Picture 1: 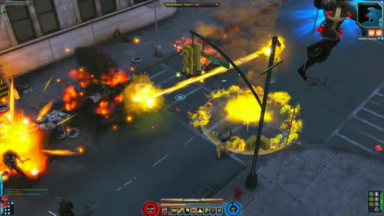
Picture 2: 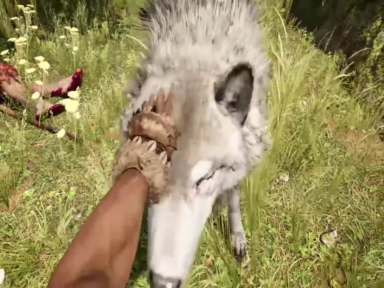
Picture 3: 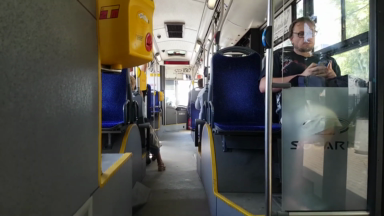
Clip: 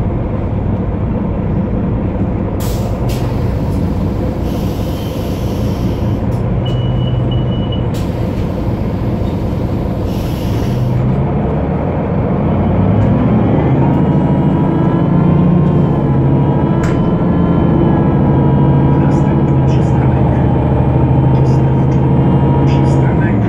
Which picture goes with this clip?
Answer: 3